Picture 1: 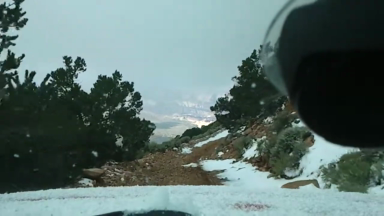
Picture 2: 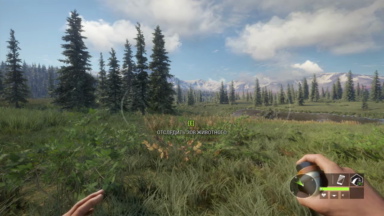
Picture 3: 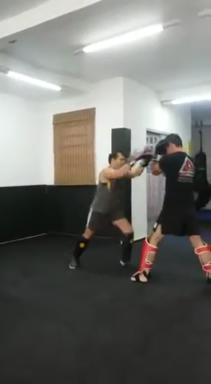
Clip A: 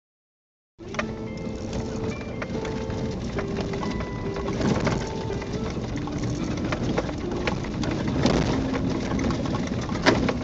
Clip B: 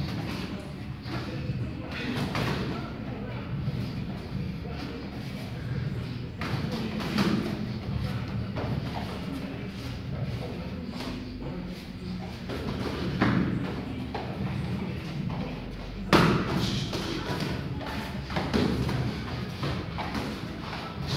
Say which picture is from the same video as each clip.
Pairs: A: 1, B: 3